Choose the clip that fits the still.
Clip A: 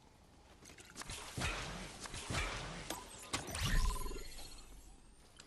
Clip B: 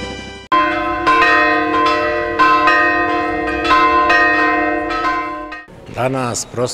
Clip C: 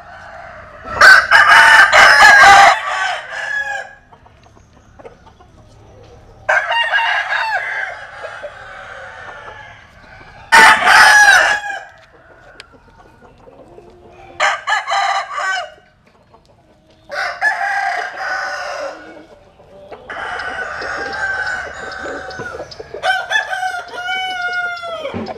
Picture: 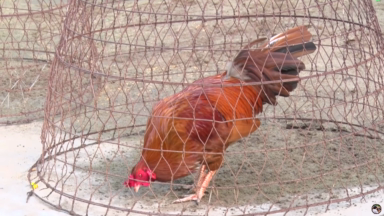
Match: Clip C